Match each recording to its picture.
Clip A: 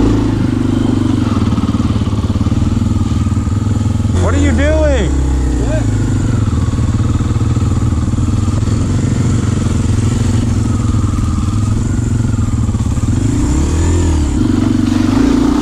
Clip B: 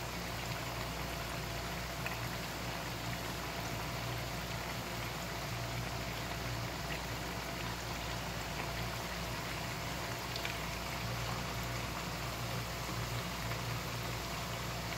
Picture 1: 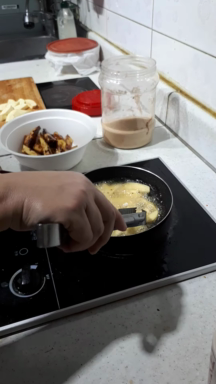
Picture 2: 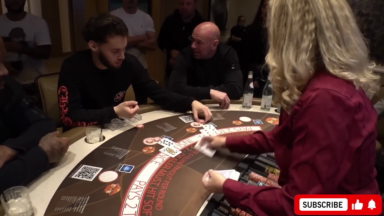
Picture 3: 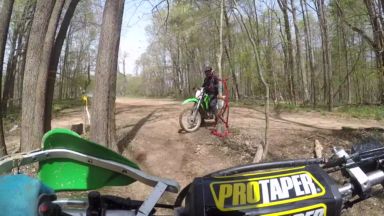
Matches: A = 3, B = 1